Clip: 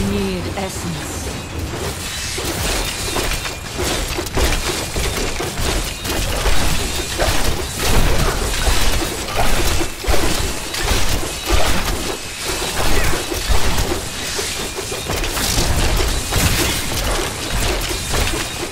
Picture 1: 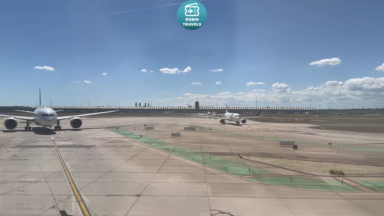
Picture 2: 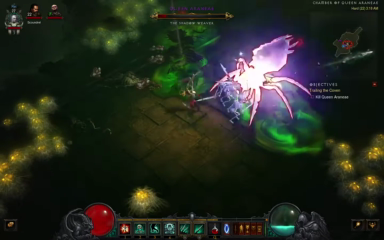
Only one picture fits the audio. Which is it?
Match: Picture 2